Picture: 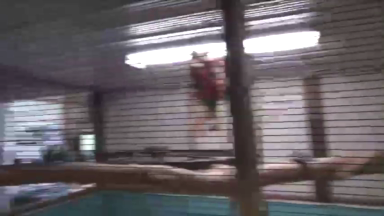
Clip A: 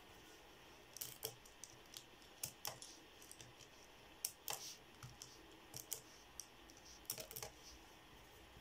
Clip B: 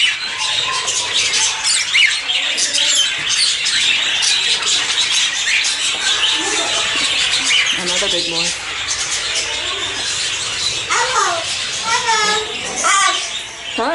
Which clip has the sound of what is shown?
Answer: B